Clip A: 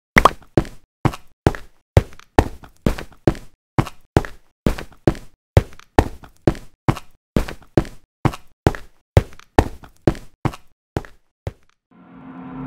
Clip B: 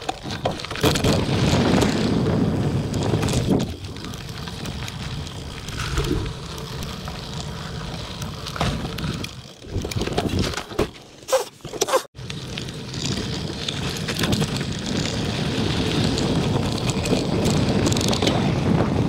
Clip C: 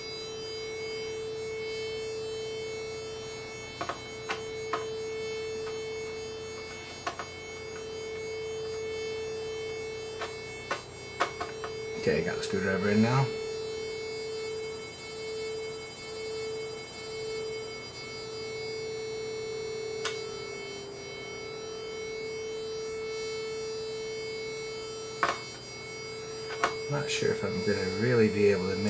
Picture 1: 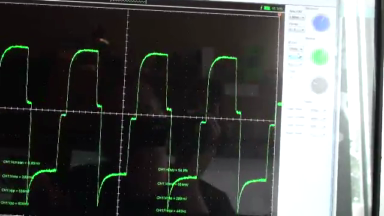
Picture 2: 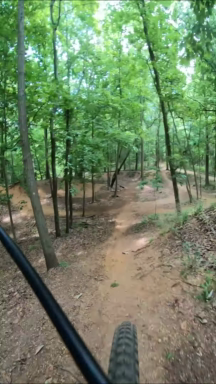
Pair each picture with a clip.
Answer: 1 C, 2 B